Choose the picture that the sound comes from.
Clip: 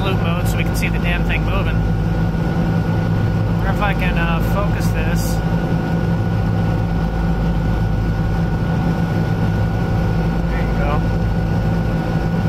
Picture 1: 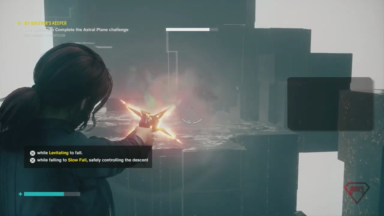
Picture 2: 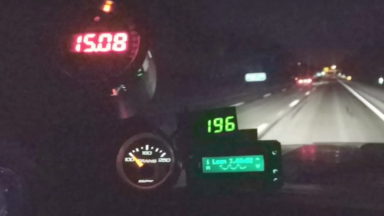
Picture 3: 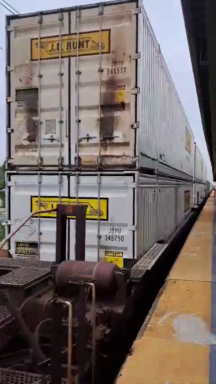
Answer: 2